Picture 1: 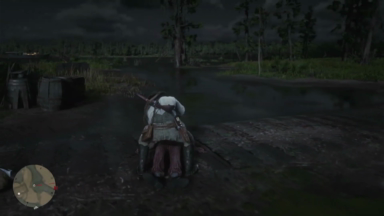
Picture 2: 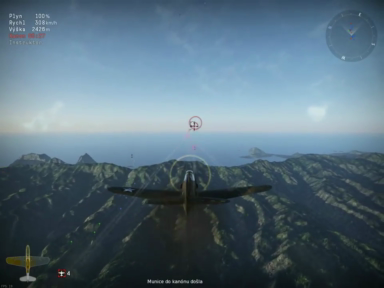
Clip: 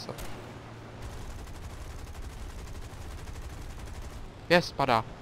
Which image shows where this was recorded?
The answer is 2